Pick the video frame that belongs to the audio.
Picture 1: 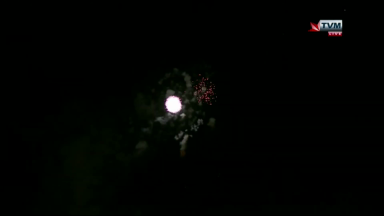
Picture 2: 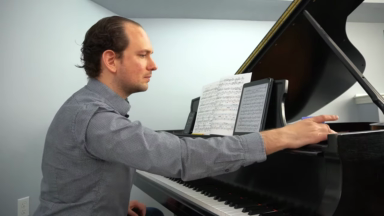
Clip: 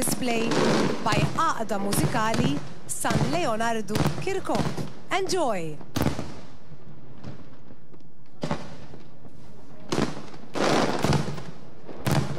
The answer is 1